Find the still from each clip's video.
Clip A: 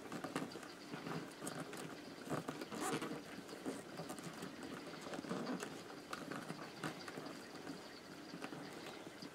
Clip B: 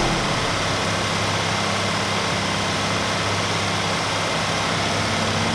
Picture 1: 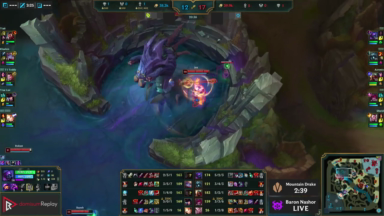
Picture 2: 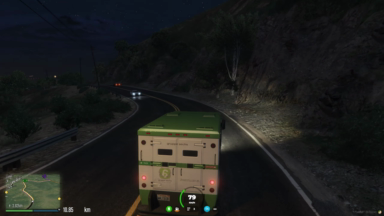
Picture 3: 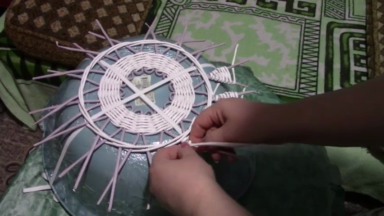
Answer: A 3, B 2